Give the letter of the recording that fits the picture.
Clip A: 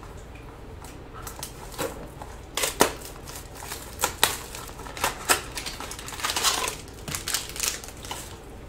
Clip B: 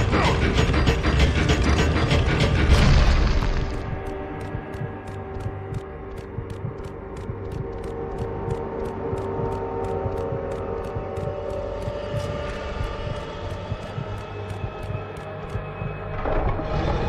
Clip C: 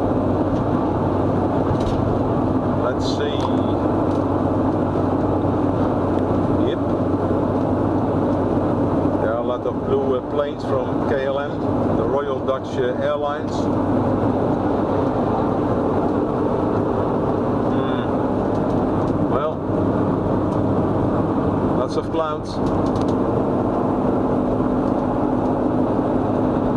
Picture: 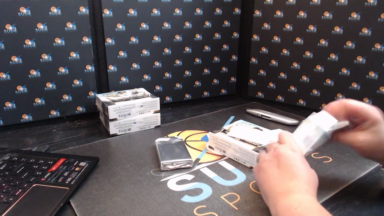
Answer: A